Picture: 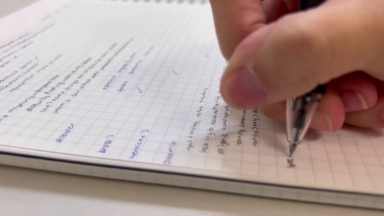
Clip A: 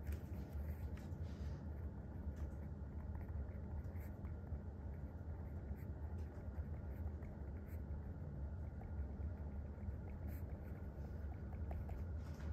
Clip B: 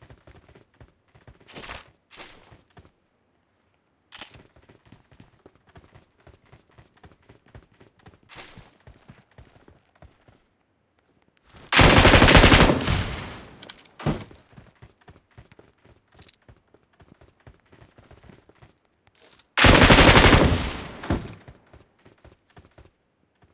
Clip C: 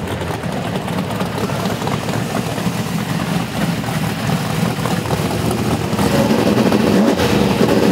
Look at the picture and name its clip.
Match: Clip A